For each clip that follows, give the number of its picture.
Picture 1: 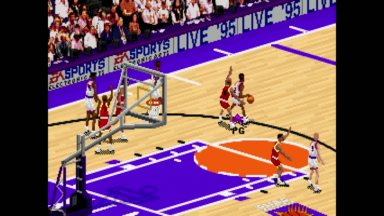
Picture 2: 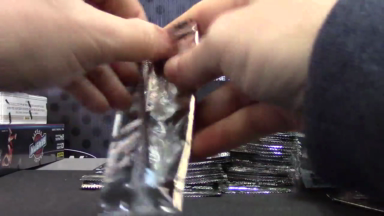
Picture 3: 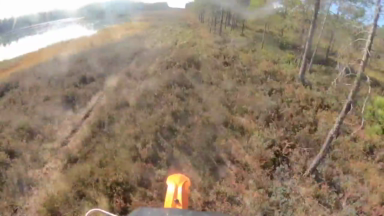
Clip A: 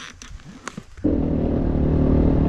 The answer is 3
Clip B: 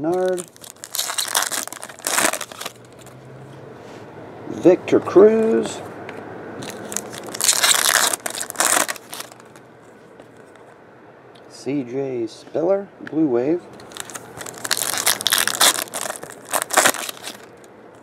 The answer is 2